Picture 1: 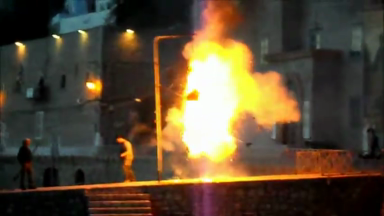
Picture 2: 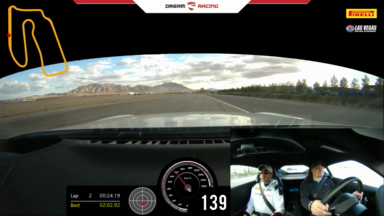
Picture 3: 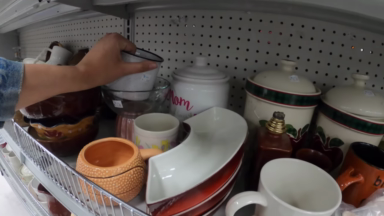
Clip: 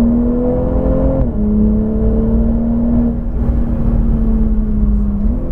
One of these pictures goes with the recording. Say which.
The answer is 2